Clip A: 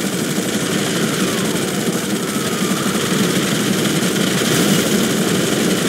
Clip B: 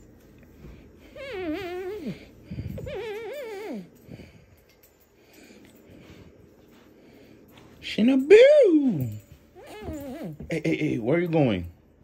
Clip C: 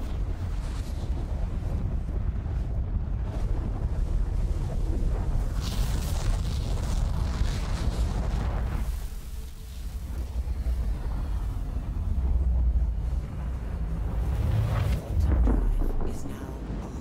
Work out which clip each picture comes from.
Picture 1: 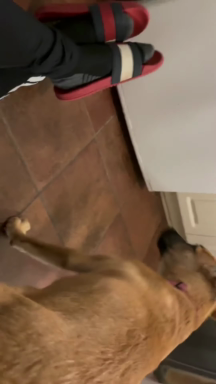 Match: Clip B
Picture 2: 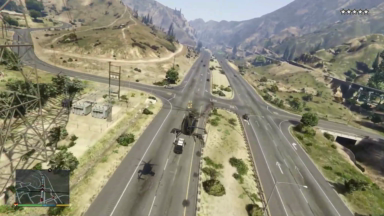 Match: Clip A